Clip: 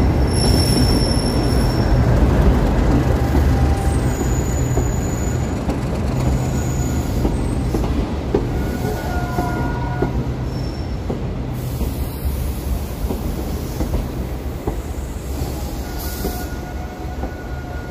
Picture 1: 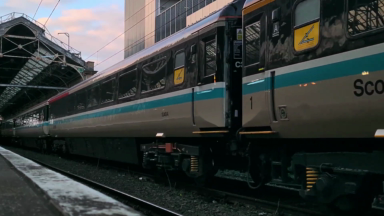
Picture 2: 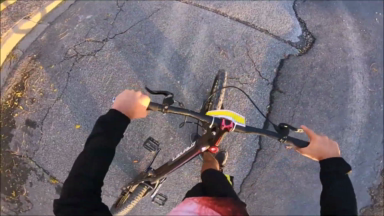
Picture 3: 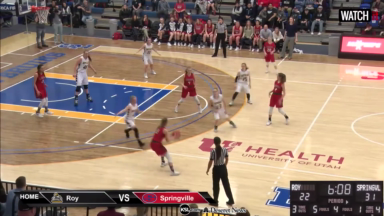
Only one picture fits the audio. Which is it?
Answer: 1